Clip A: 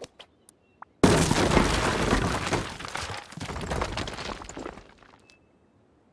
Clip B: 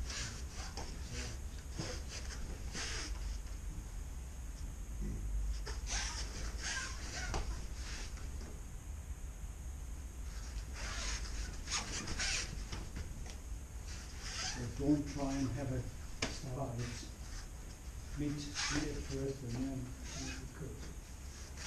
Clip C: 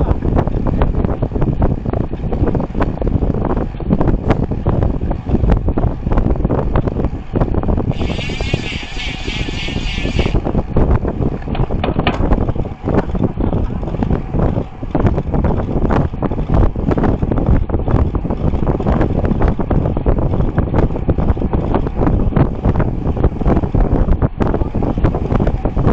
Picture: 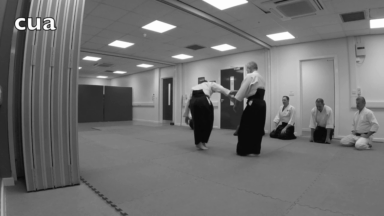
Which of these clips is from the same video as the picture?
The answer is B